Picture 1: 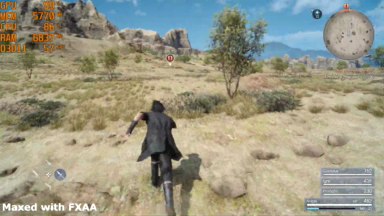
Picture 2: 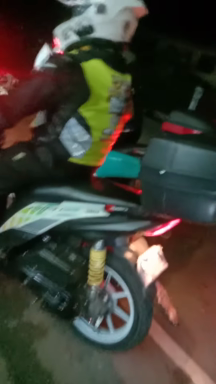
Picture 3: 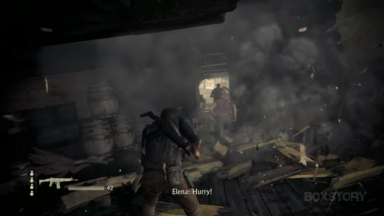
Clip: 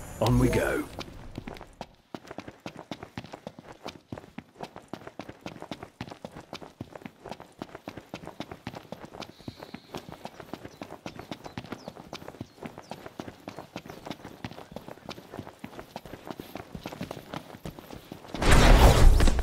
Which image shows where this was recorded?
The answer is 1